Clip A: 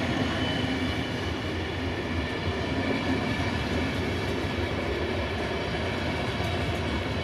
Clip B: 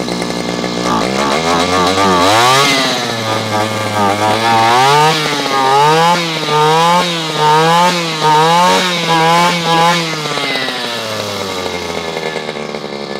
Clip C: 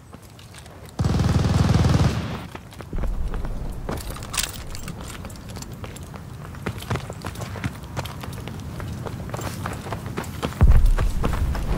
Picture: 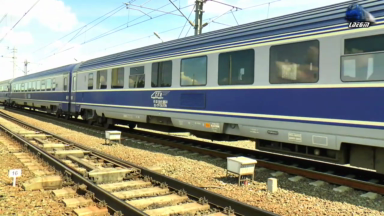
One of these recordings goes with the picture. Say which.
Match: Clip A